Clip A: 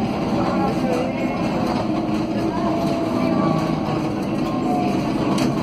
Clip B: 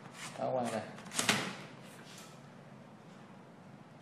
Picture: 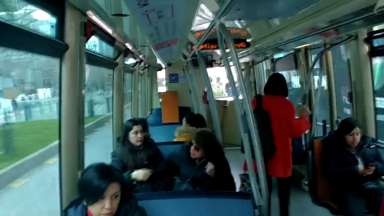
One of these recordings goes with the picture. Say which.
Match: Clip A